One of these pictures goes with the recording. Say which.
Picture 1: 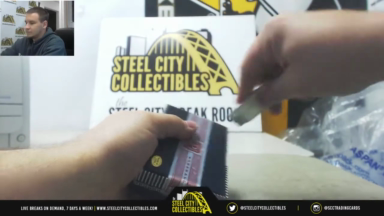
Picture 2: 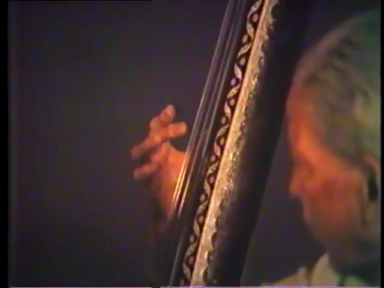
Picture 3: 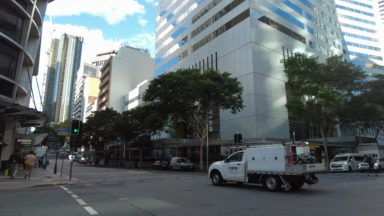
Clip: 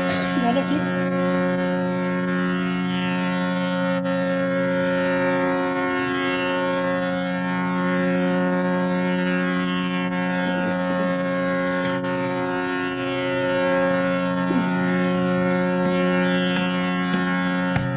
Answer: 2